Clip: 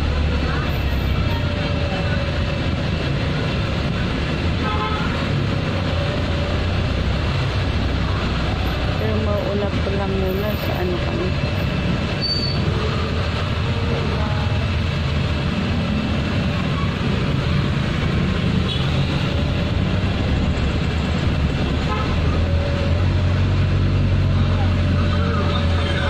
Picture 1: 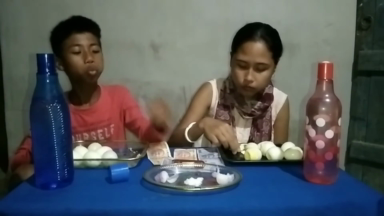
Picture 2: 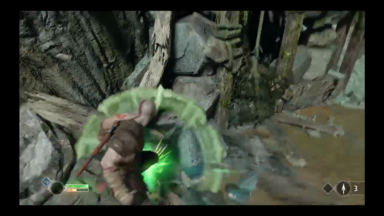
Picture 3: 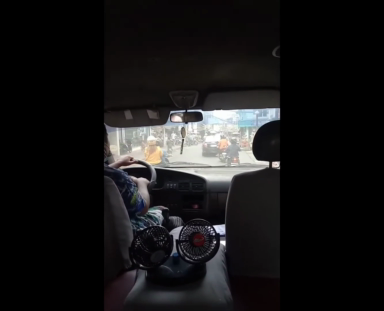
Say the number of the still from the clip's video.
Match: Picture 3